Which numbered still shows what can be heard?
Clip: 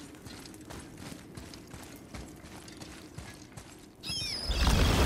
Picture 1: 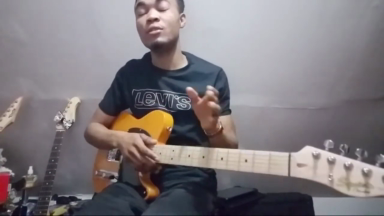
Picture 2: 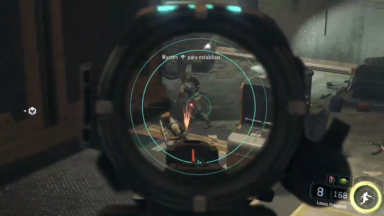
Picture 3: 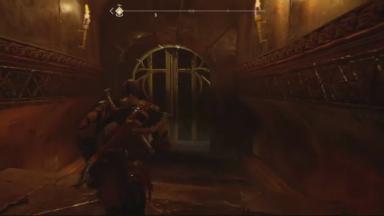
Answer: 3